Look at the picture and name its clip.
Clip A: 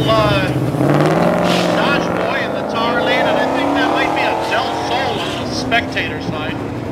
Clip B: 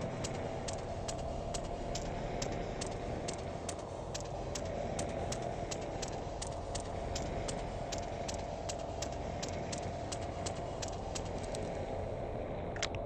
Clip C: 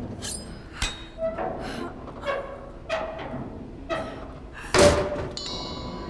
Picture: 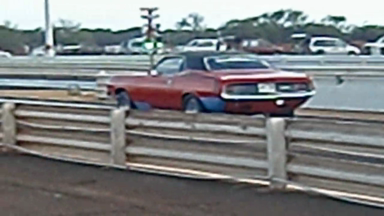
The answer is A